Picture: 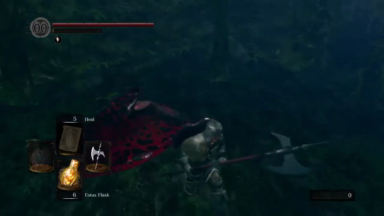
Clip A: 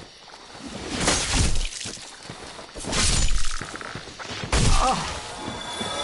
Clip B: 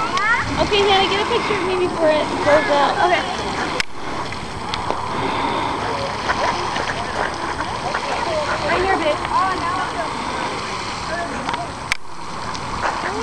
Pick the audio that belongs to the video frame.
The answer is A